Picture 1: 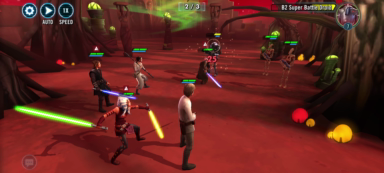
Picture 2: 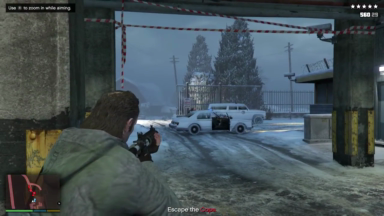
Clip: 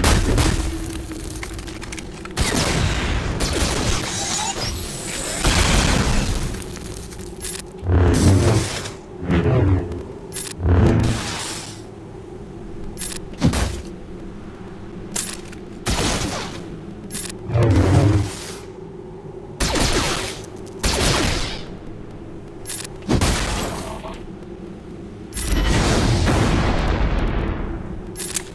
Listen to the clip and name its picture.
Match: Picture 1